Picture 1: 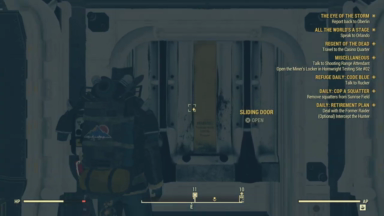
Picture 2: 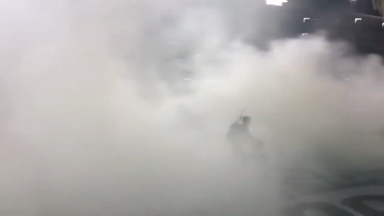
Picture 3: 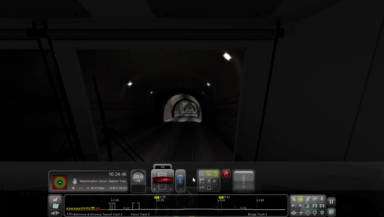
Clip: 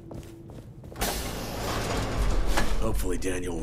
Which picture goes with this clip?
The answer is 1